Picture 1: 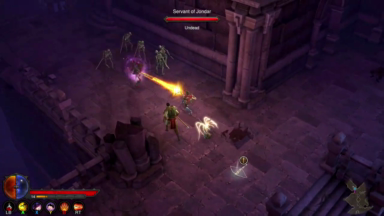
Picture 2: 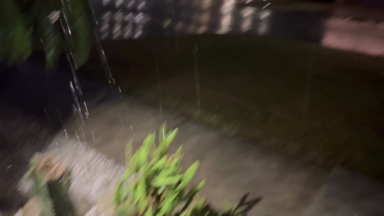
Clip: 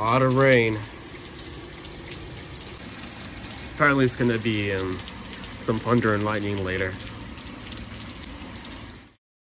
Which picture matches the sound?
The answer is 2